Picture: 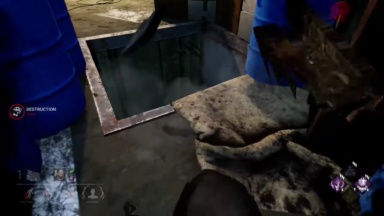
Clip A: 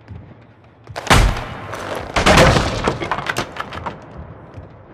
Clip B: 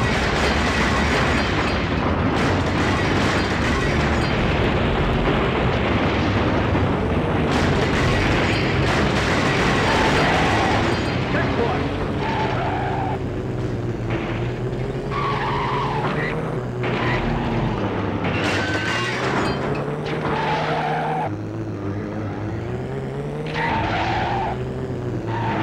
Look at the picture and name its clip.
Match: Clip A